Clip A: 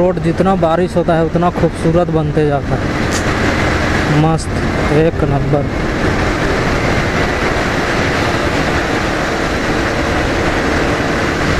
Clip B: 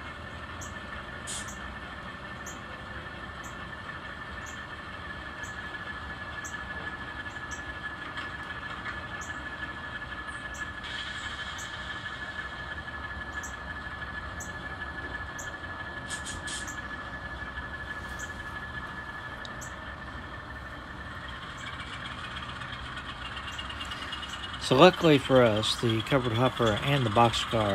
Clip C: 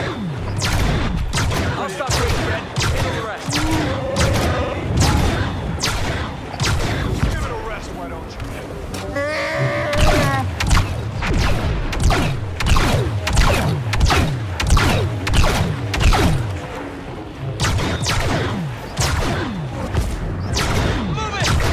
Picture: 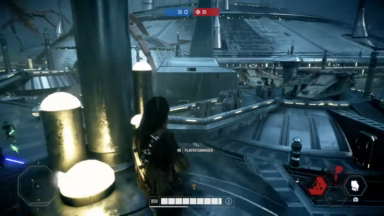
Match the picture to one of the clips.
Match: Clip C